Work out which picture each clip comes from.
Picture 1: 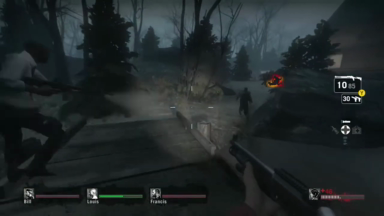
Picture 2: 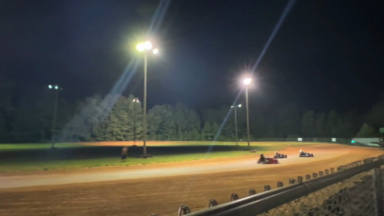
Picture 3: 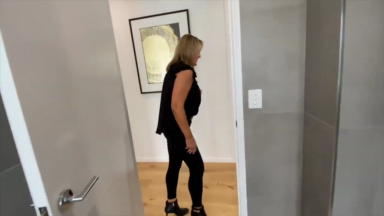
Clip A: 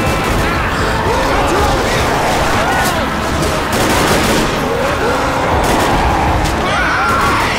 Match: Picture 1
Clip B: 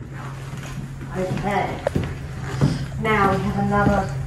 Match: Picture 3